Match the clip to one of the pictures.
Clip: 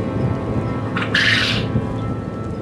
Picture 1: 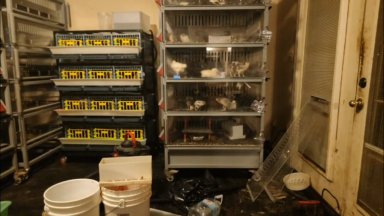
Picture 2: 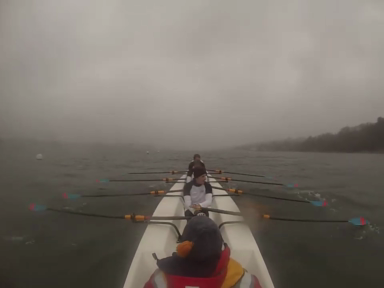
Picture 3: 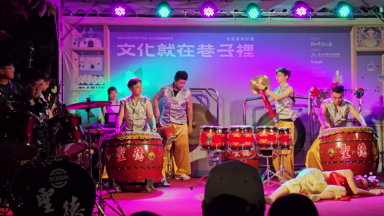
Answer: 1